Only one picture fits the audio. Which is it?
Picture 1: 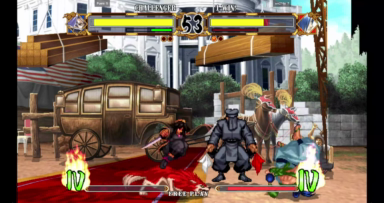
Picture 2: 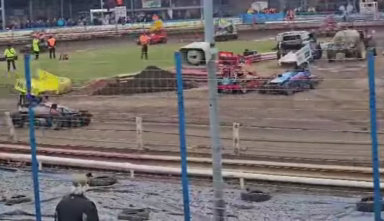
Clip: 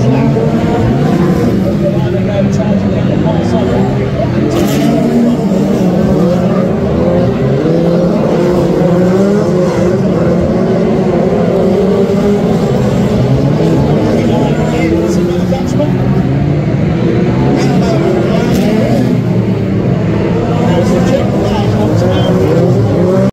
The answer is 2